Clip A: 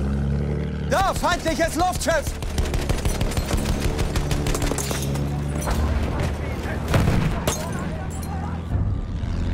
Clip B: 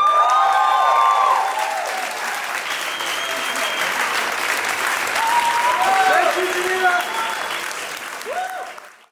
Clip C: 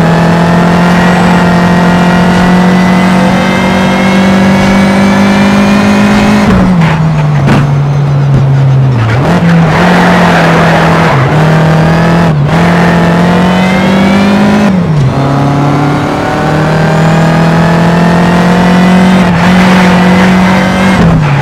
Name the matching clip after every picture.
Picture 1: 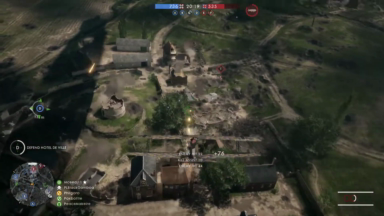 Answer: A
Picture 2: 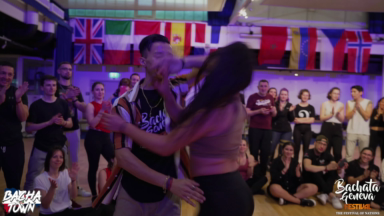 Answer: B